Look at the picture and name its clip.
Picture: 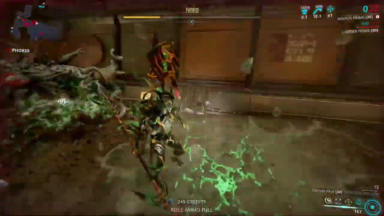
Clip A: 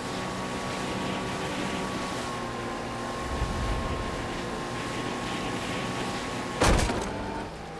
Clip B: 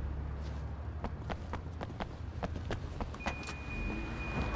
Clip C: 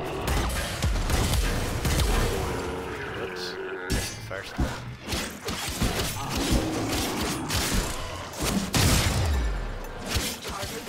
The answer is C